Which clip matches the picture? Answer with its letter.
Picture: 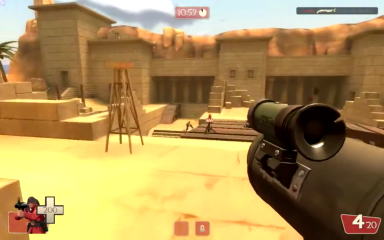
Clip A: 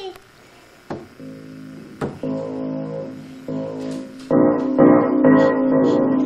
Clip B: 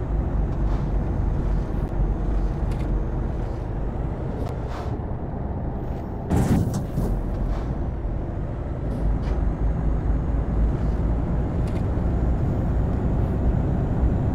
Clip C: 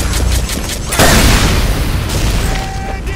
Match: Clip C